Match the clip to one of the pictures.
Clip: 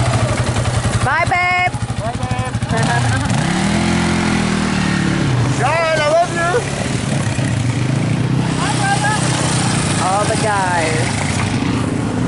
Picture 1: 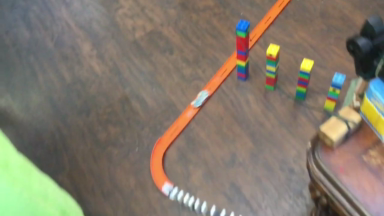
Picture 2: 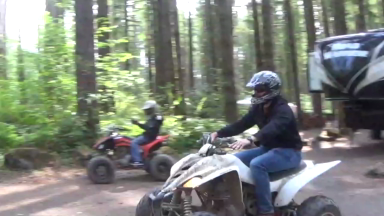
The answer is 2